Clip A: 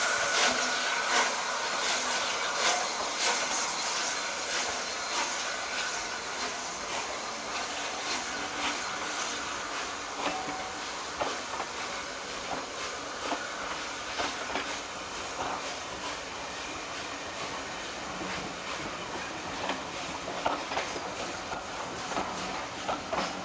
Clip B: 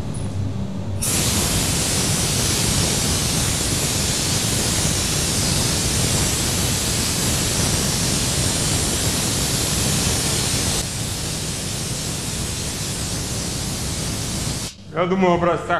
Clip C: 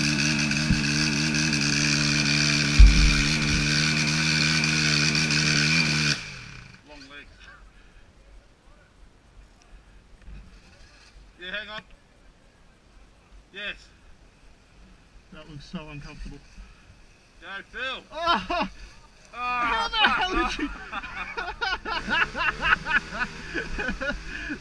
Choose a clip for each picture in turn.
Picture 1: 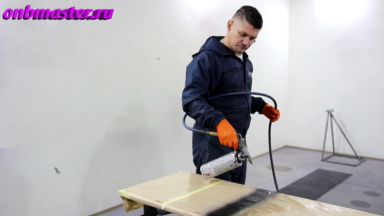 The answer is B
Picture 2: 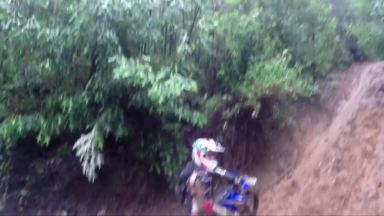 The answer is C